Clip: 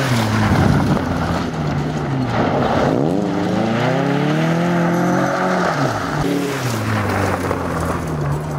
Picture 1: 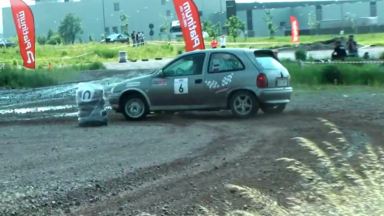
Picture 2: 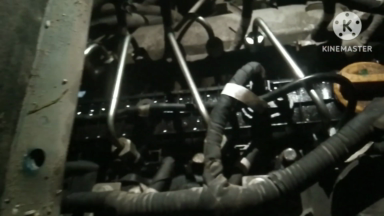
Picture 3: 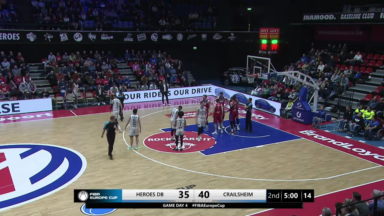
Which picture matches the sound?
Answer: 1